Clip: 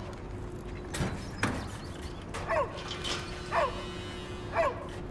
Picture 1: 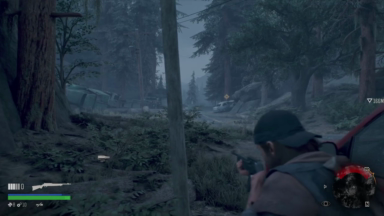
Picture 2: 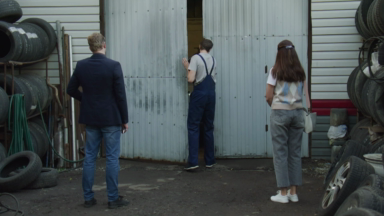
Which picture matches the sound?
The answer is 2